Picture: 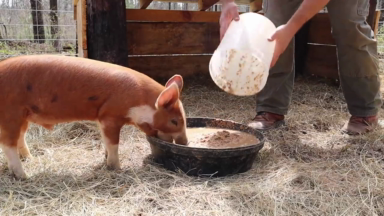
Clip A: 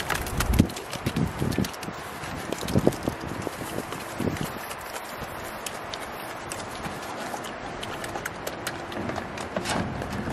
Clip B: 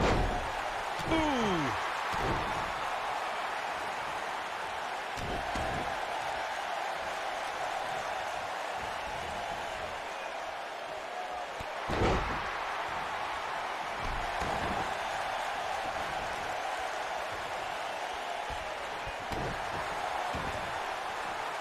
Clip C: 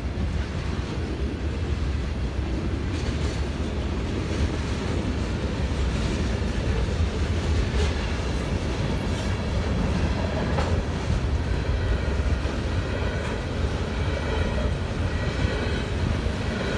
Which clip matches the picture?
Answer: A